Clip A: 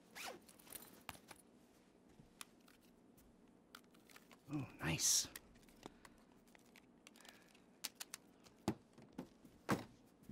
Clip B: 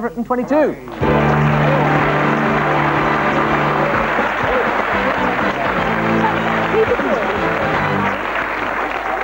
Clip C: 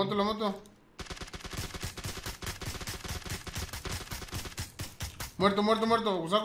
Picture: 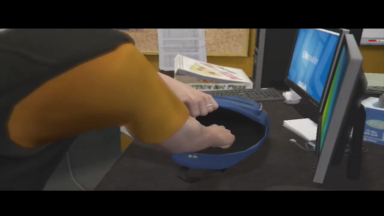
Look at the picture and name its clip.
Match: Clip A